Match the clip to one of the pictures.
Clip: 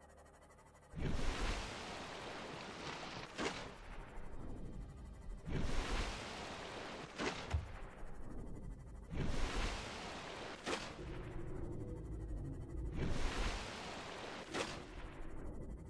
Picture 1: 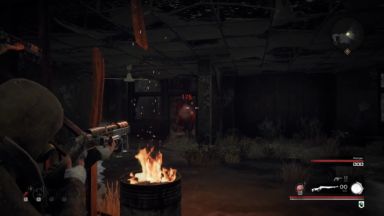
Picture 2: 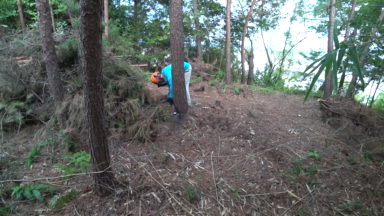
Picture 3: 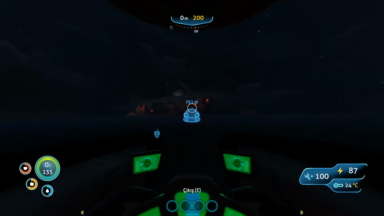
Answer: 3